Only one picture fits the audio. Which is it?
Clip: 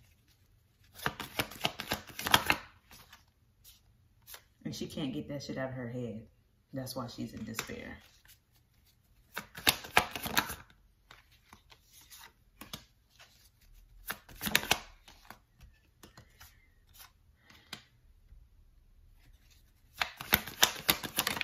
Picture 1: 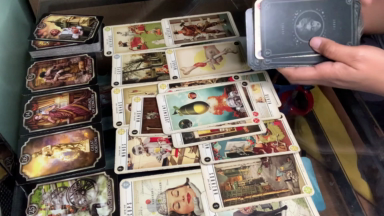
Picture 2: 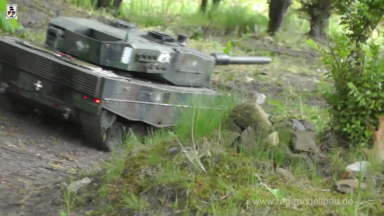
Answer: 1